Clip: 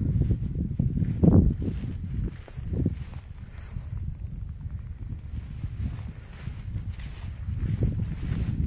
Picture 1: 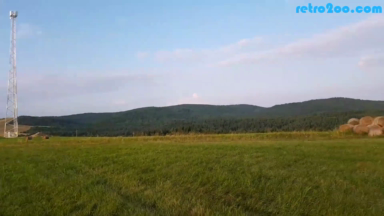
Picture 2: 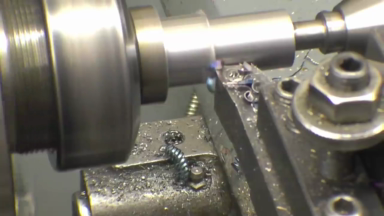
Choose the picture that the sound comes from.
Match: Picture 1